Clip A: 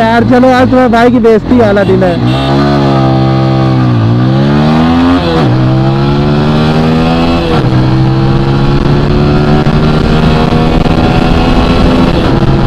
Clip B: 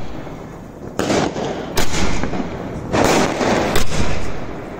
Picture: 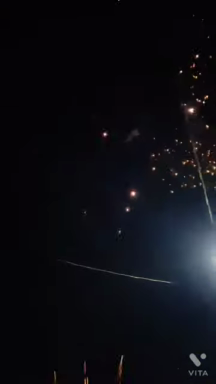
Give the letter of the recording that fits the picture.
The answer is B